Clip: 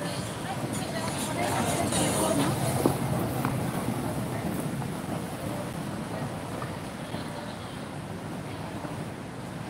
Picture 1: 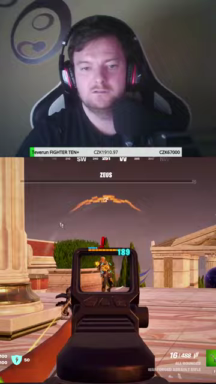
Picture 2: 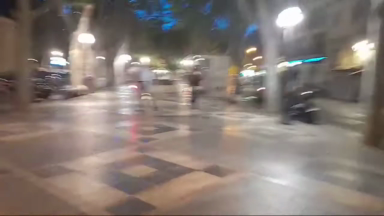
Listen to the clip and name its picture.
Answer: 2